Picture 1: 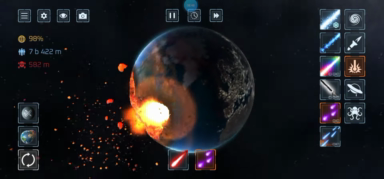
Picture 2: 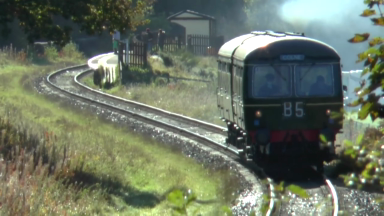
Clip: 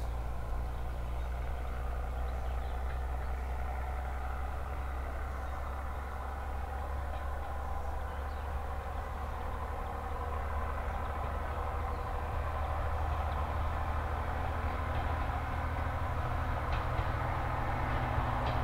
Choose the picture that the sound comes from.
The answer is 2